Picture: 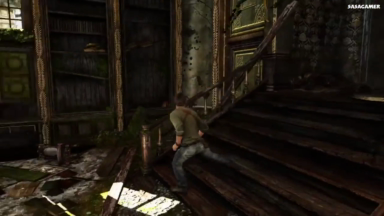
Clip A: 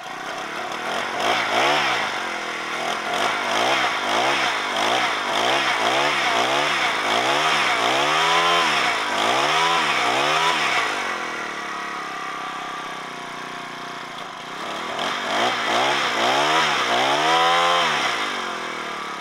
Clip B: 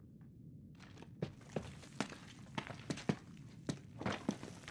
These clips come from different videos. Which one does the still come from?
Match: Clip B